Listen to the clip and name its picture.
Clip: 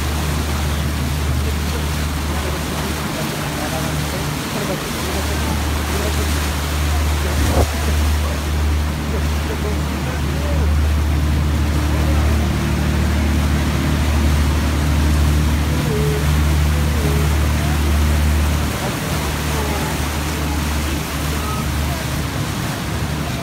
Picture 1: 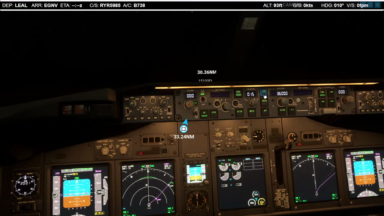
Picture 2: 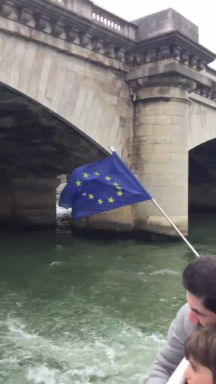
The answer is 2